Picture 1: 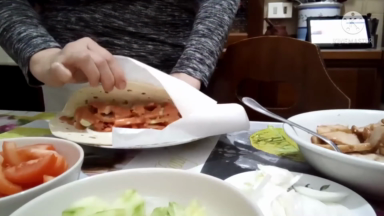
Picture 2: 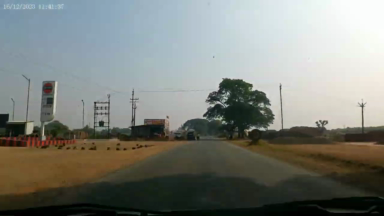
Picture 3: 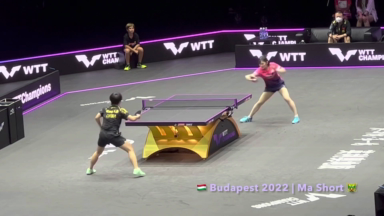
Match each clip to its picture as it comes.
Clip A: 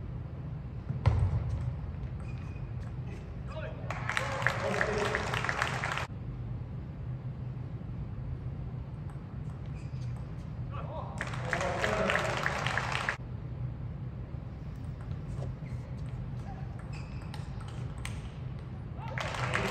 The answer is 3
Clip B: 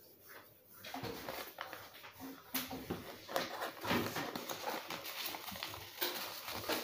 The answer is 1